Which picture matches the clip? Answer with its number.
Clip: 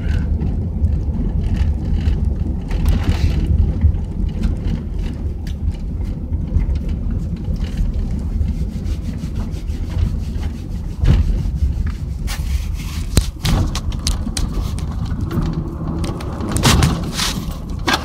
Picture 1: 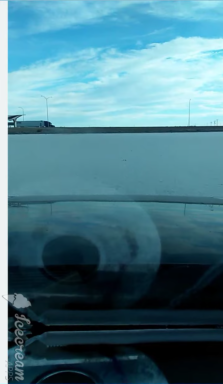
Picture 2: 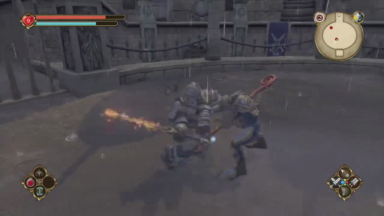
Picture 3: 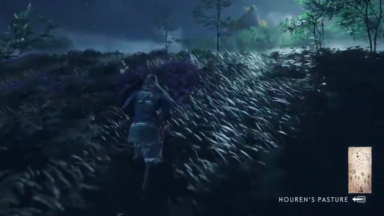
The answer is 1